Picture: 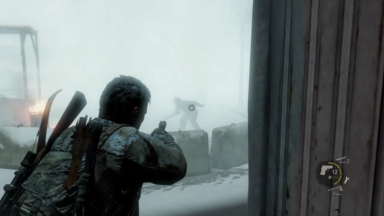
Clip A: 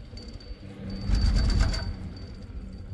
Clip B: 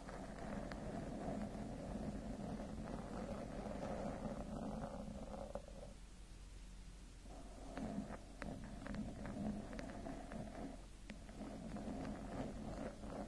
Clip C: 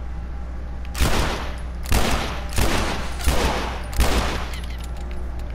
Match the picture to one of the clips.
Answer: C